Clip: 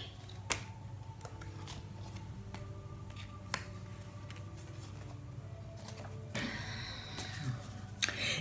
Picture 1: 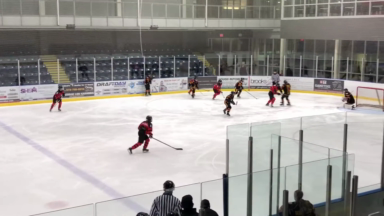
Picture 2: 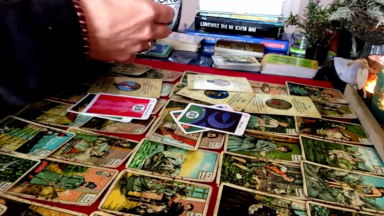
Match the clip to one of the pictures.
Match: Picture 2